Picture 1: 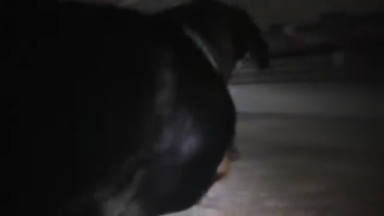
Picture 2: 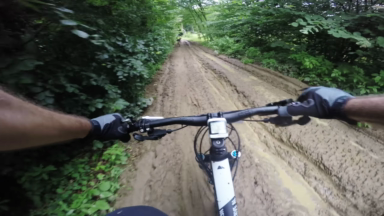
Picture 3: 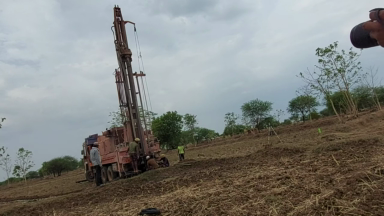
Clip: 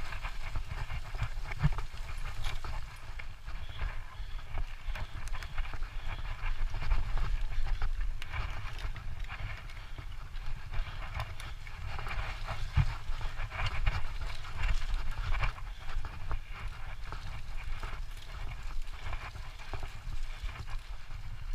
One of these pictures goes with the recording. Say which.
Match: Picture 2